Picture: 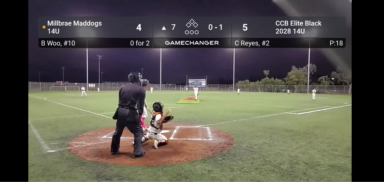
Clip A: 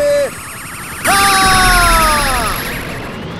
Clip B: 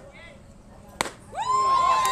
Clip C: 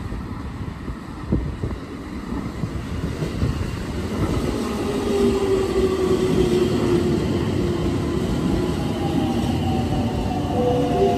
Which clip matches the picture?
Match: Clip B